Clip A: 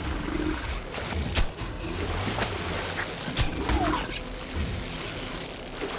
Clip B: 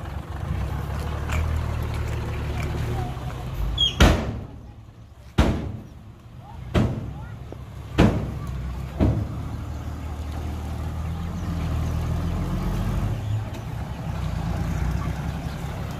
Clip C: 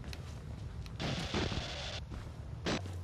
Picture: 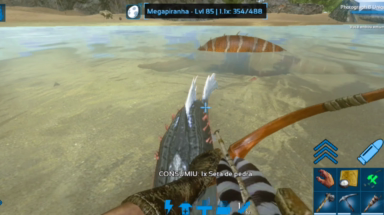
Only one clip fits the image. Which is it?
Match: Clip A